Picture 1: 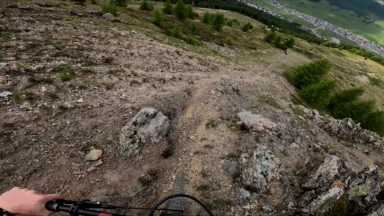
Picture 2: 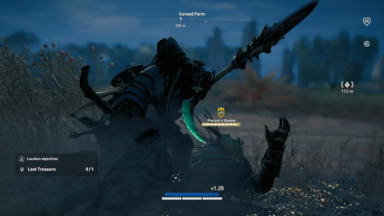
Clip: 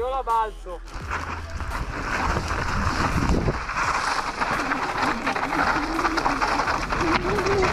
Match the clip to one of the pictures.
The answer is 1